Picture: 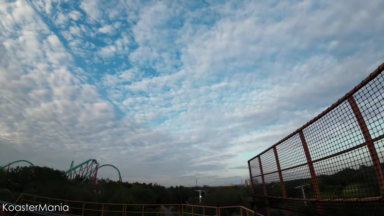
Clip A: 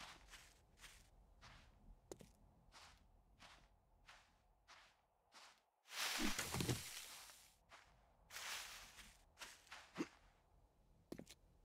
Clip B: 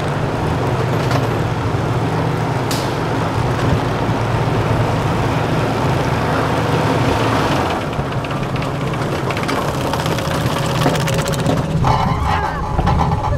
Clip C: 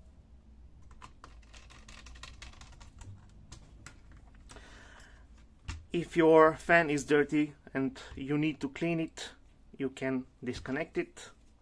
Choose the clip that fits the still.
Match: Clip B